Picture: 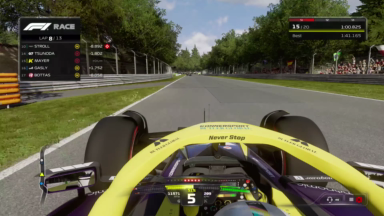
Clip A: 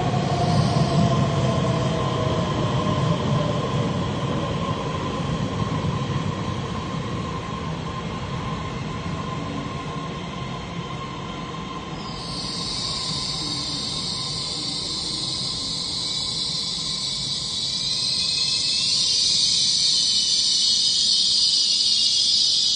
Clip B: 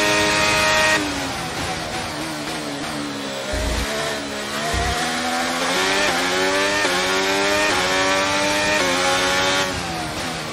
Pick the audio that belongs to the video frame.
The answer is B